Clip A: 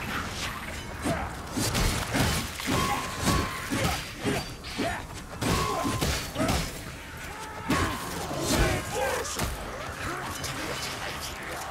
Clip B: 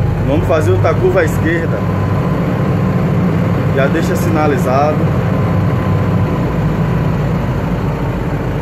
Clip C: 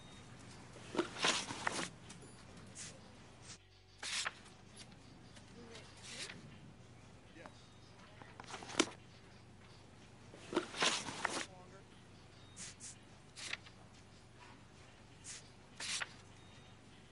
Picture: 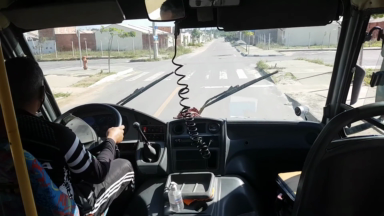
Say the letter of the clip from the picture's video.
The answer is B